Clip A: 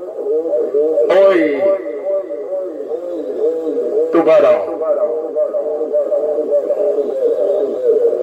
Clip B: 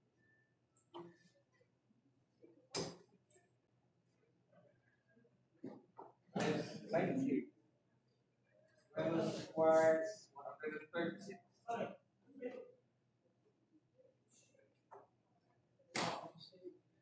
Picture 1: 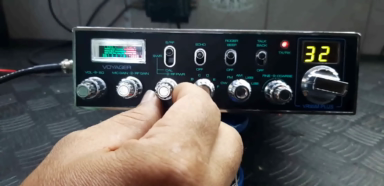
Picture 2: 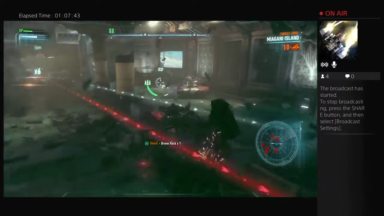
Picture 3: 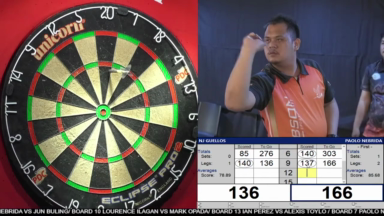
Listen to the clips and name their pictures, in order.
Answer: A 1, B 3